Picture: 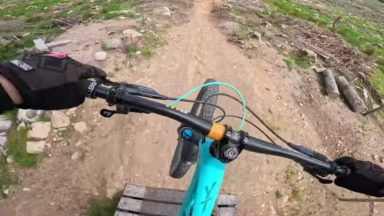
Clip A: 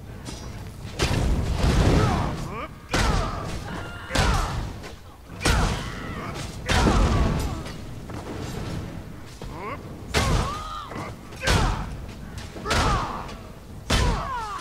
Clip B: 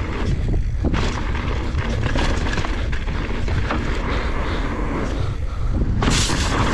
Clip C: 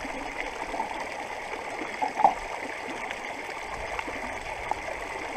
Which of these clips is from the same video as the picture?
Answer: B